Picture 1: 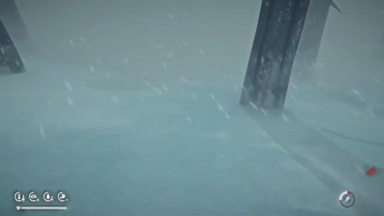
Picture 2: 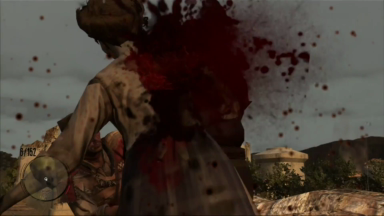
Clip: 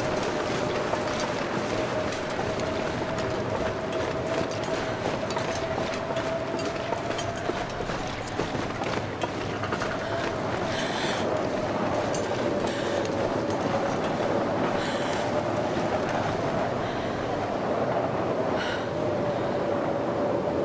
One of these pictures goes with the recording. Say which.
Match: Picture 1